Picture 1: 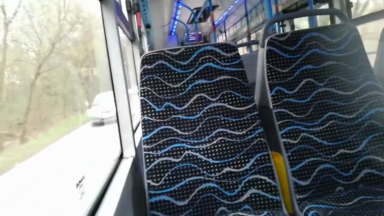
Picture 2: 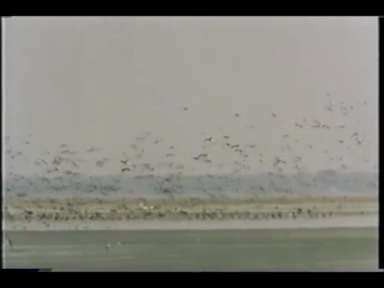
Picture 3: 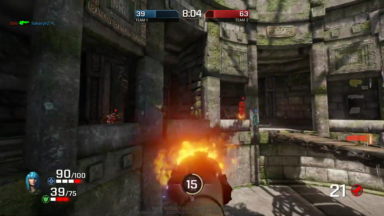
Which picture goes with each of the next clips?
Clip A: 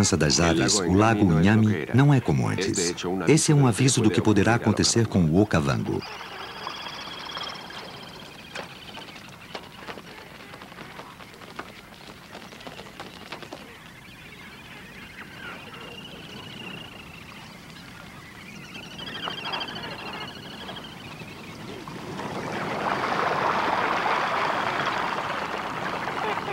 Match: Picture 2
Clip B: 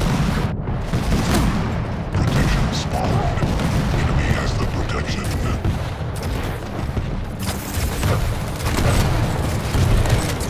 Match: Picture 3